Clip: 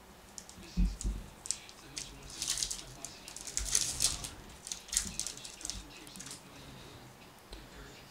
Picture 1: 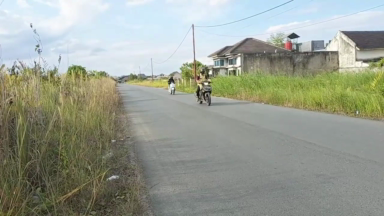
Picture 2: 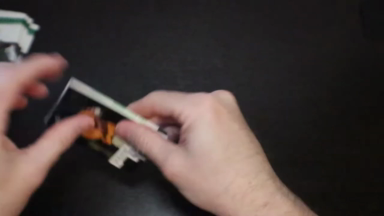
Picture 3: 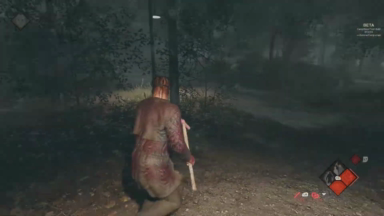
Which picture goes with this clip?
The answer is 2